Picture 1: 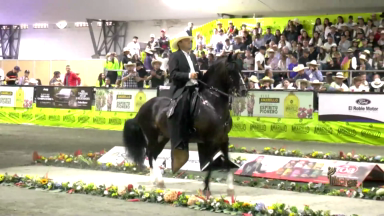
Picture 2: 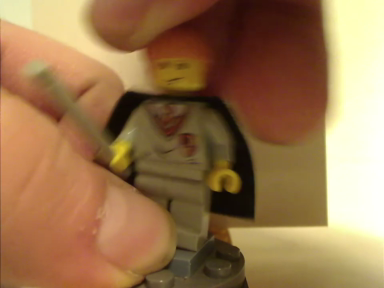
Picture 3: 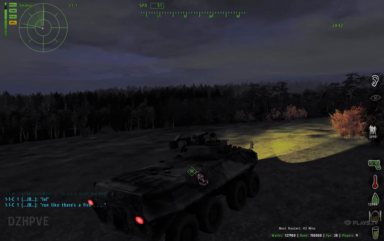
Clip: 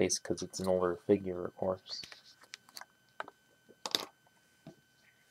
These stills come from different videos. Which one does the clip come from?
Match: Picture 2